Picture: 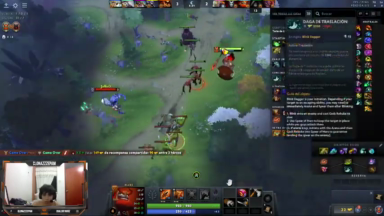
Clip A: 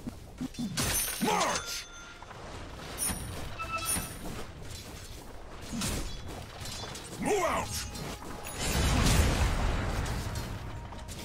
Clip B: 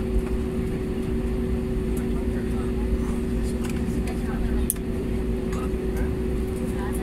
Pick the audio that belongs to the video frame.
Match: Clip A